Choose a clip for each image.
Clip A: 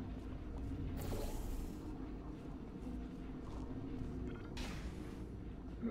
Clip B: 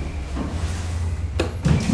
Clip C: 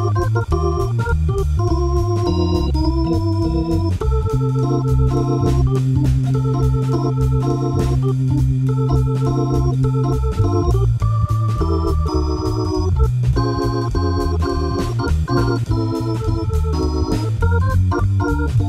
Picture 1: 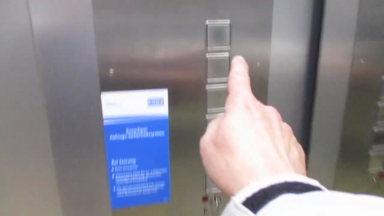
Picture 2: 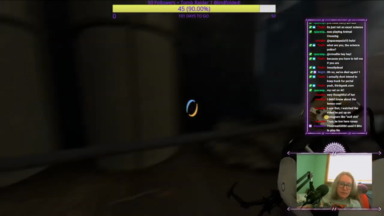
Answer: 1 B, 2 A